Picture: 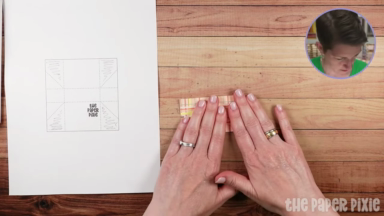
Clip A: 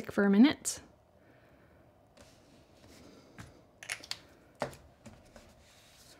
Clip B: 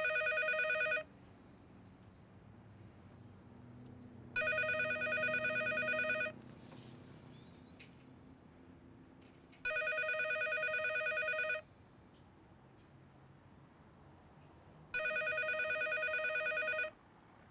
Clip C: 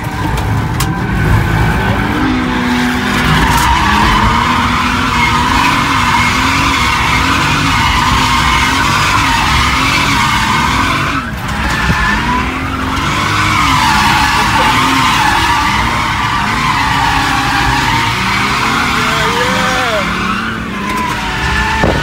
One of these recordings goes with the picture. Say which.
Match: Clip A